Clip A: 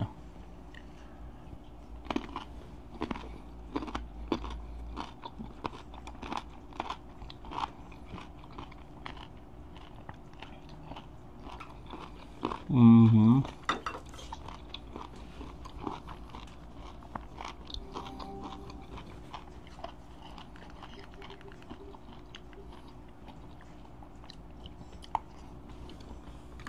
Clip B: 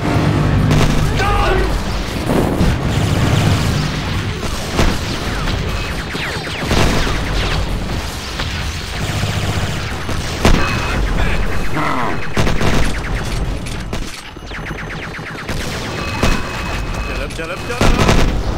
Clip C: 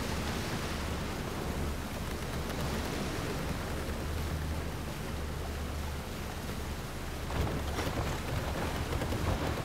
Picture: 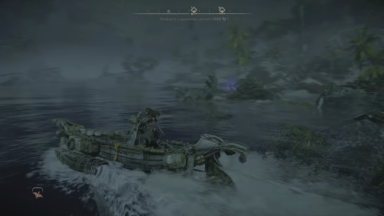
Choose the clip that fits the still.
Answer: C